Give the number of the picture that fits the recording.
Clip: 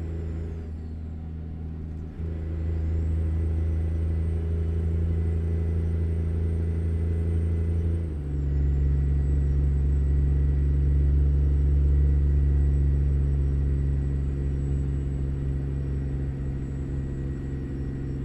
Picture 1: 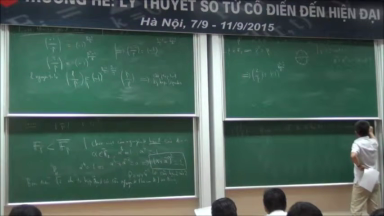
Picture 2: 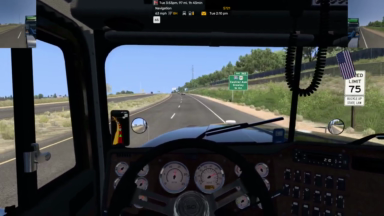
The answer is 2